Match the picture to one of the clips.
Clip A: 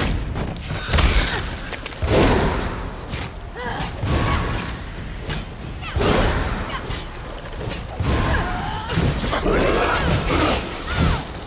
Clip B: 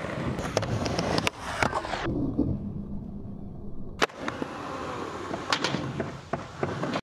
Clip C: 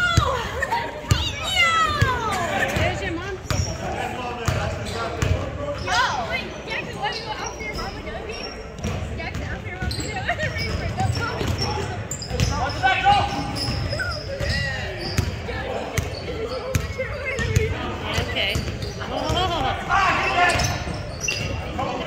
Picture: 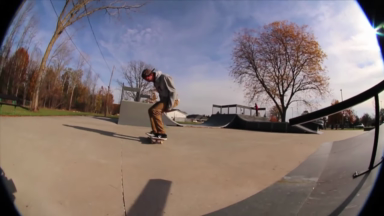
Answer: B